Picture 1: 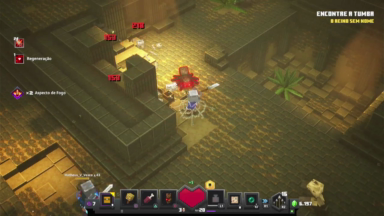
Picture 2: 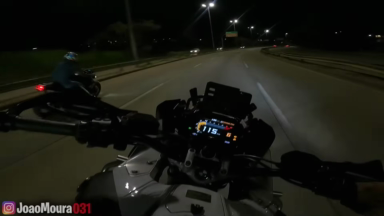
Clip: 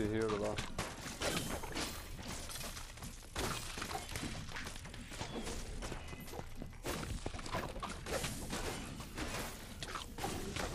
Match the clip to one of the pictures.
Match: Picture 1